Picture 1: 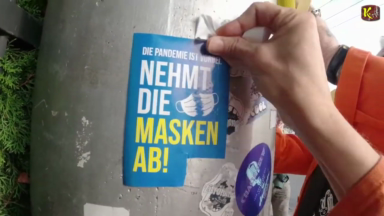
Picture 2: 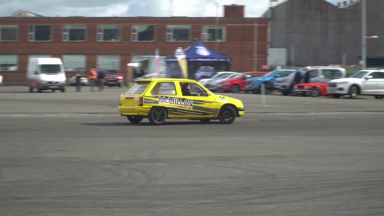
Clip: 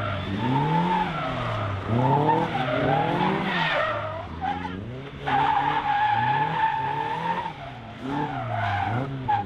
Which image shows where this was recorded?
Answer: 2